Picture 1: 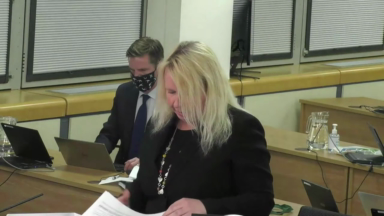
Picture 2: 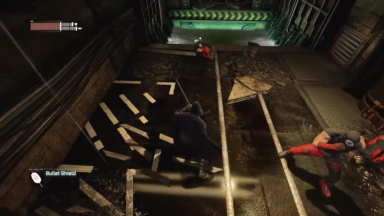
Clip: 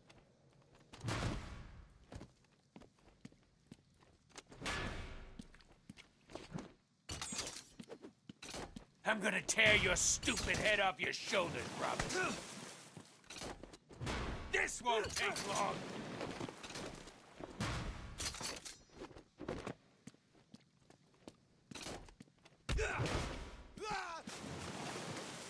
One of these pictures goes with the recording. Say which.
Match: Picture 2